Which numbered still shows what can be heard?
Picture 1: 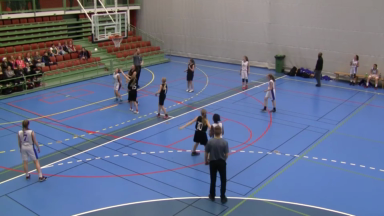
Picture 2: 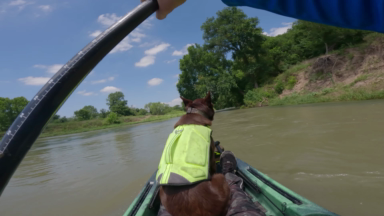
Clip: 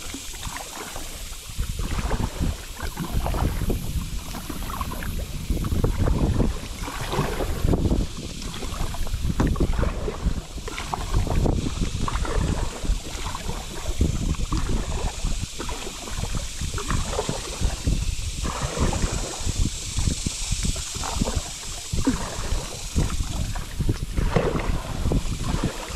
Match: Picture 2